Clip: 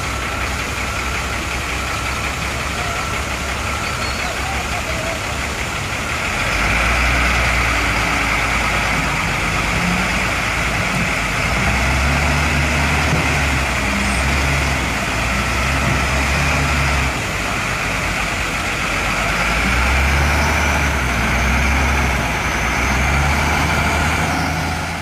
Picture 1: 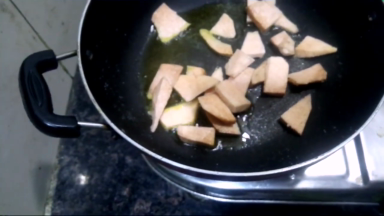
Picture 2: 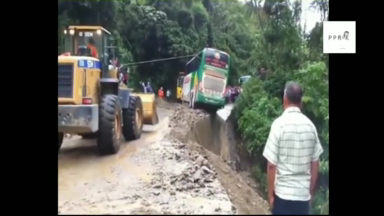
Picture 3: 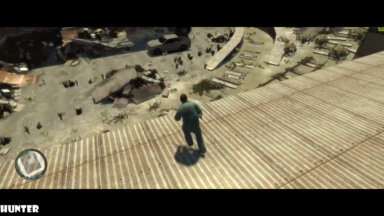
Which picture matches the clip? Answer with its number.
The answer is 2